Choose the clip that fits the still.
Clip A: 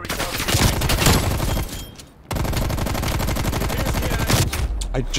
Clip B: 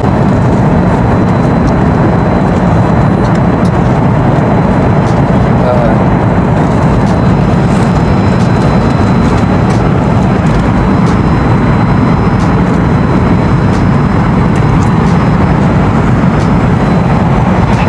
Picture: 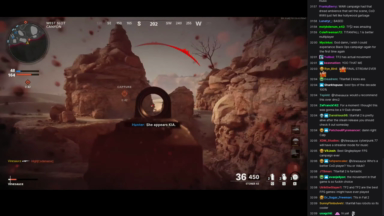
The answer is A